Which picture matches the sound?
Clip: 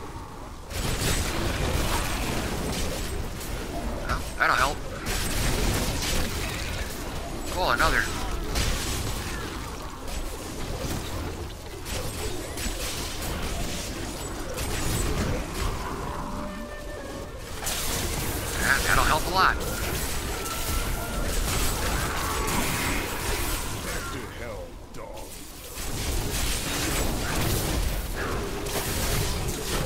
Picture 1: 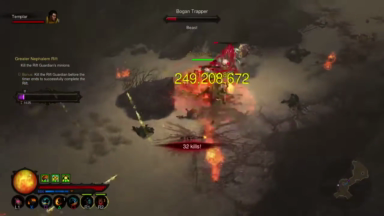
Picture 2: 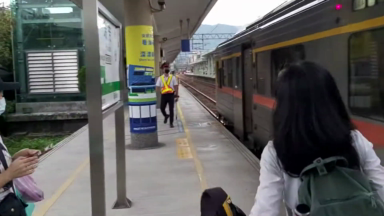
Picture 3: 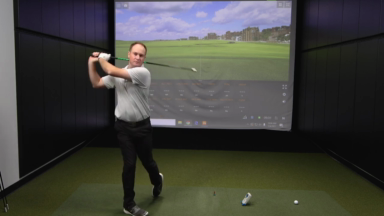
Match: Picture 1